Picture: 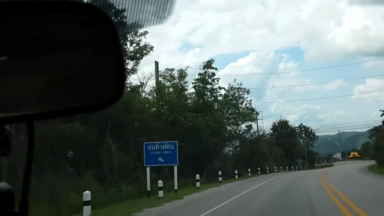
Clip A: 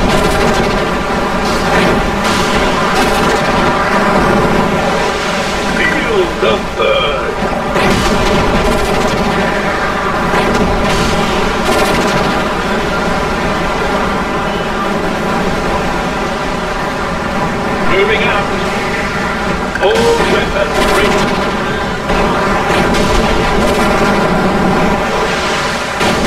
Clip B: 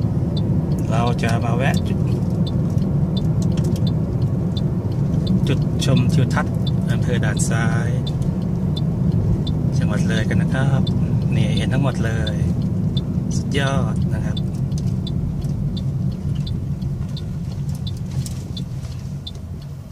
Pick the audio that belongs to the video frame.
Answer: B